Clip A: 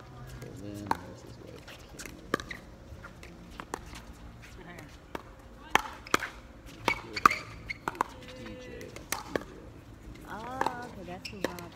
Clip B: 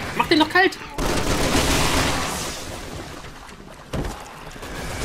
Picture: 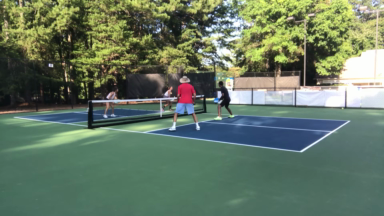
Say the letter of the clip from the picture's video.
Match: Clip A